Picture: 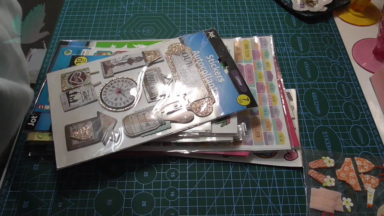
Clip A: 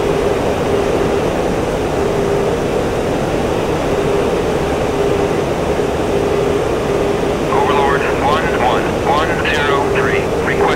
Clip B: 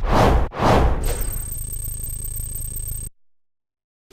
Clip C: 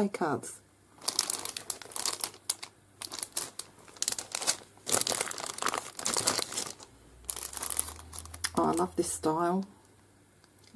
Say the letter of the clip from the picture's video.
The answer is C